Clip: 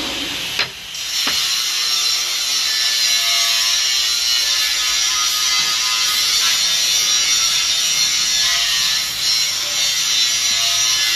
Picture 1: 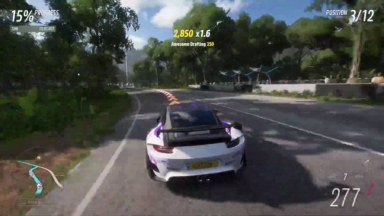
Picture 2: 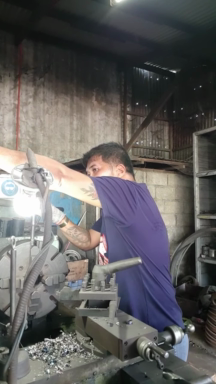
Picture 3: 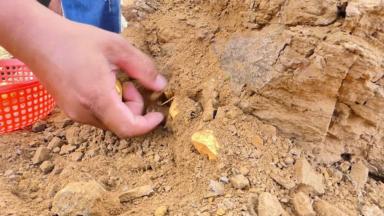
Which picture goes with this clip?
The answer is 2